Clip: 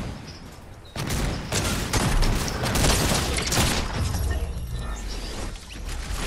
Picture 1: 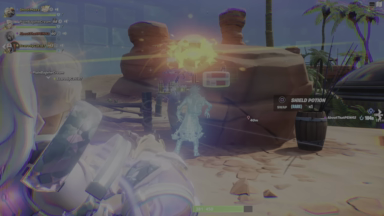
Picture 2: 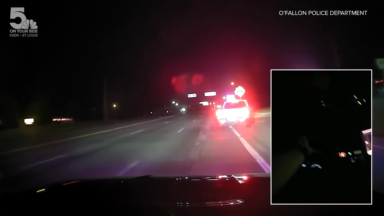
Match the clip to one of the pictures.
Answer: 1